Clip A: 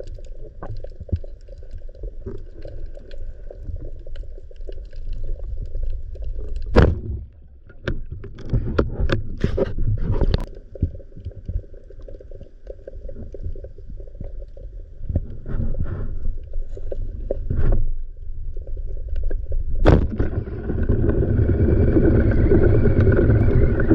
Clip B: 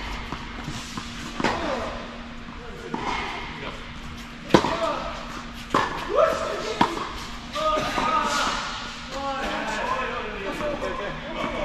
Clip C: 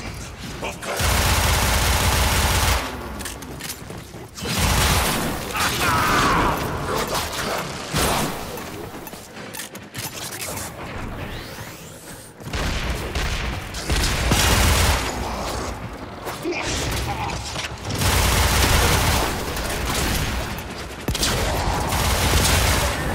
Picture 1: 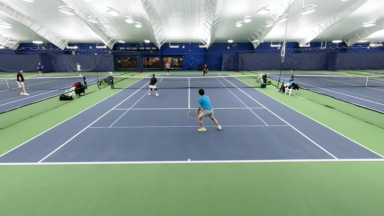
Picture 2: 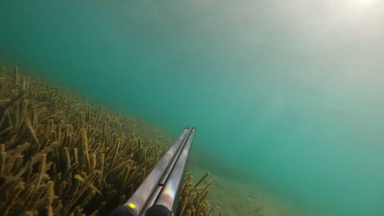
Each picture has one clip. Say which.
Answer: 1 B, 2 A